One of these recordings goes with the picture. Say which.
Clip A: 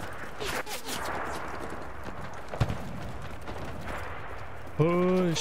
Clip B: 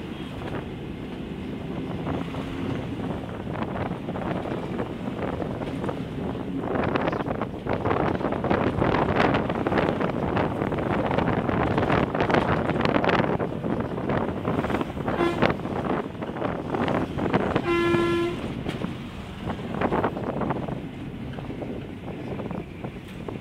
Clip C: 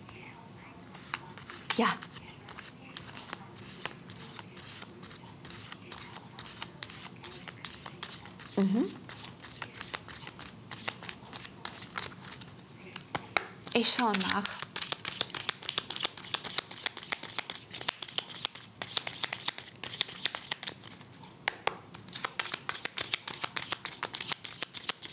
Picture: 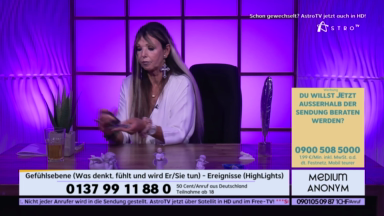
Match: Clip C